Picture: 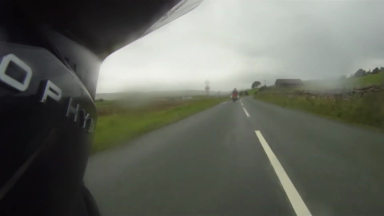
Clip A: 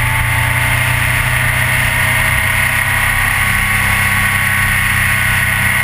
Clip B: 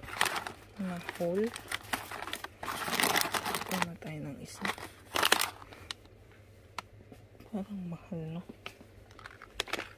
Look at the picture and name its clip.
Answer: A